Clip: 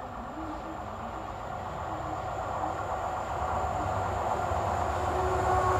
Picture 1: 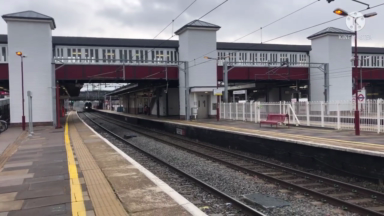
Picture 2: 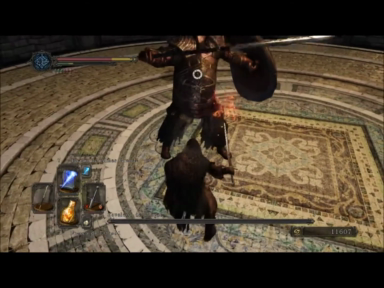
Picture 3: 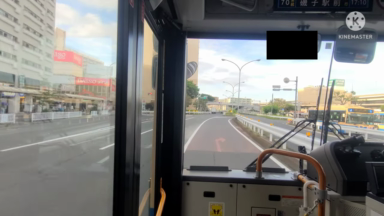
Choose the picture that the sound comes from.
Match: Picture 1